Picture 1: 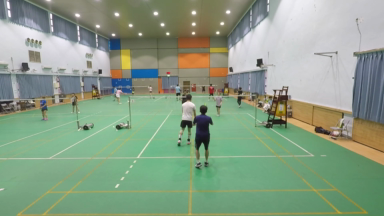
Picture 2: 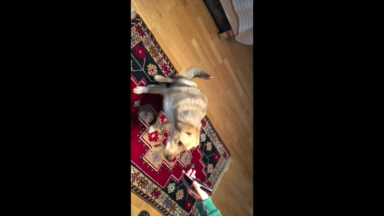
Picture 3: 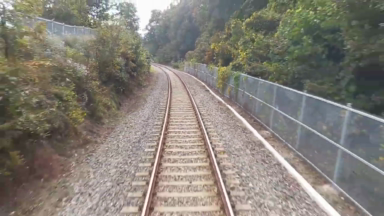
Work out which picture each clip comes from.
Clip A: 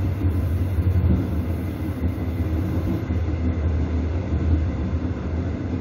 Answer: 3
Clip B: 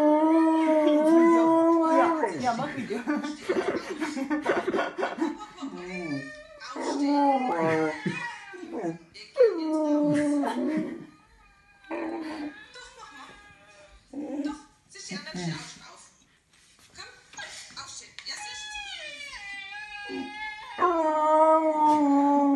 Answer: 2